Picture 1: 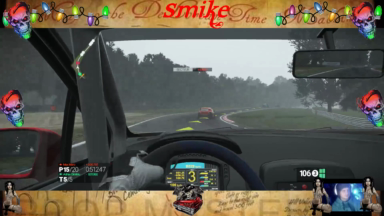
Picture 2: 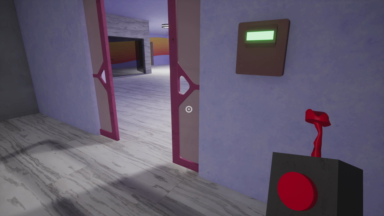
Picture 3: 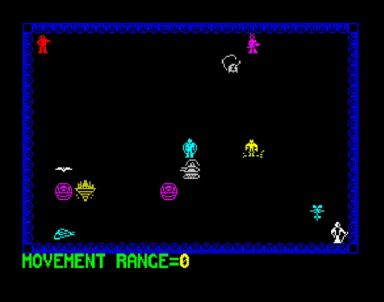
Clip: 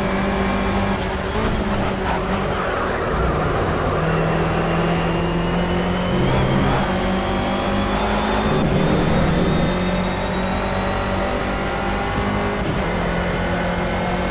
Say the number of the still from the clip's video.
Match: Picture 1